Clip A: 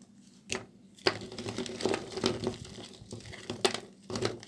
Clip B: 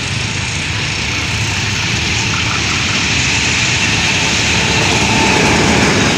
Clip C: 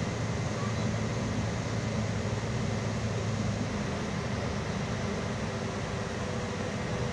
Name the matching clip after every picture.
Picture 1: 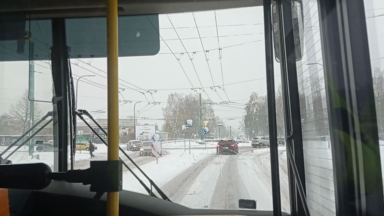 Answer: C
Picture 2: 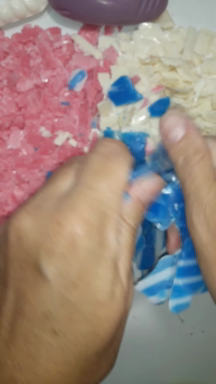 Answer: A